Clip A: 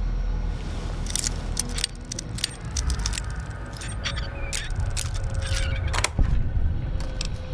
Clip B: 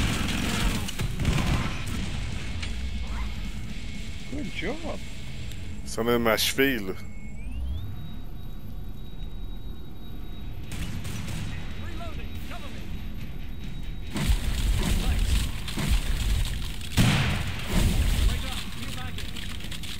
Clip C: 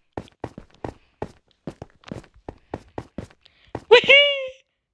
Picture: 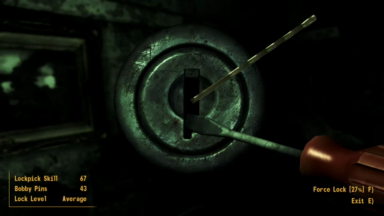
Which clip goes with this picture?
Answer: A